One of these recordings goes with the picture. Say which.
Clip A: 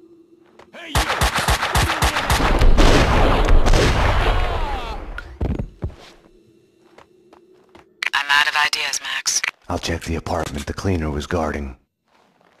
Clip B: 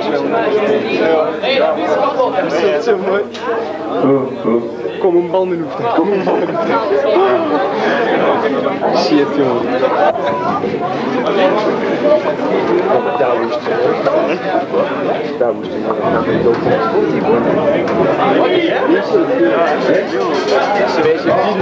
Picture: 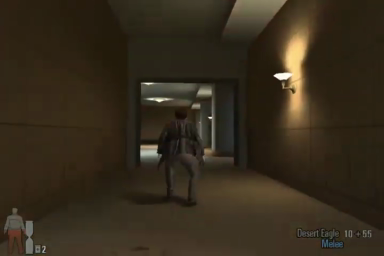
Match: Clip A